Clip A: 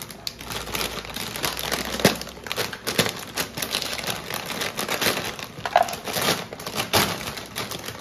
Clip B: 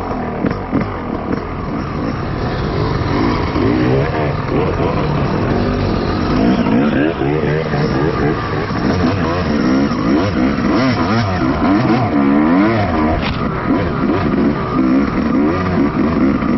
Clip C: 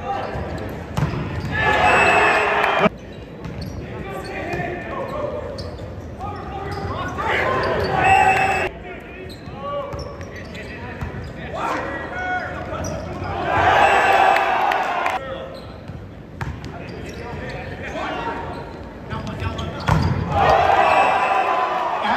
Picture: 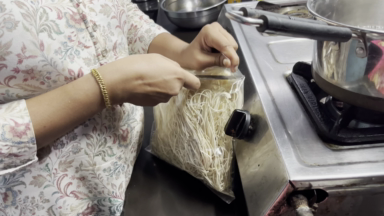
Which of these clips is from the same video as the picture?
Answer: A